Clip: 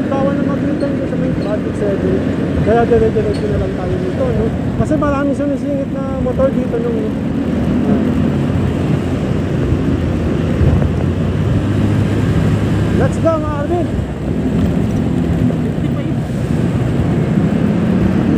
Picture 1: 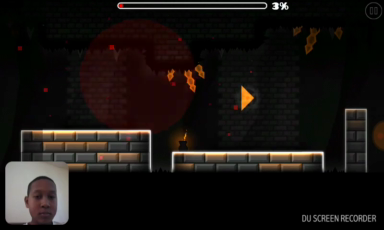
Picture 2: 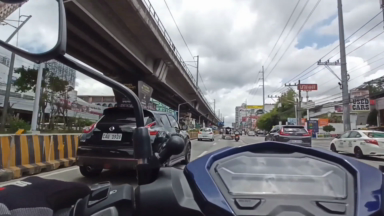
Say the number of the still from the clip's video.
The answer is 2